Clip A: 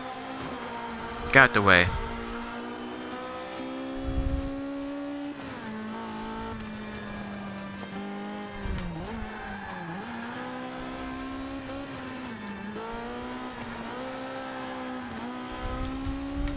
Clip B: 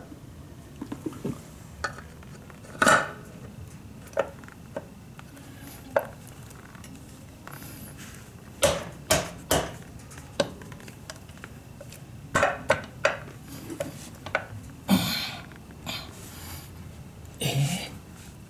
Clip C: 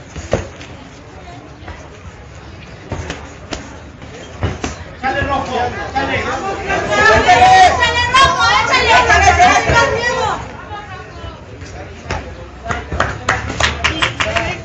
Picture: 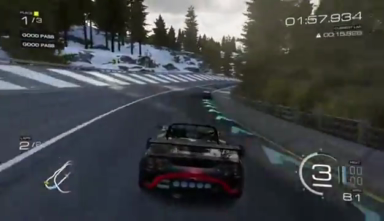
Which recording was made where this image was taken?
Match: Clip A